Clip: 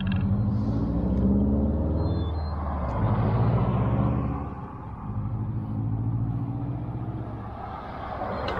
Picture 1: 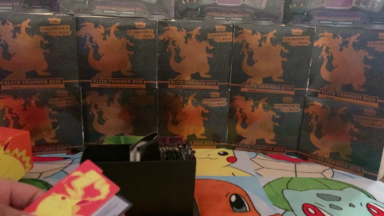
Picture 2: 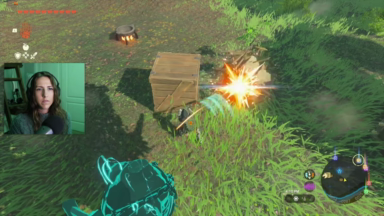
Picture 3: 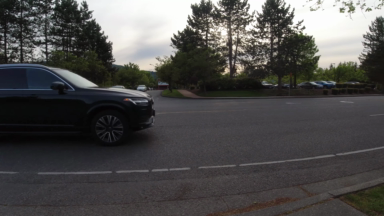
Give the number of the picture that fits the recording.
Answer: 3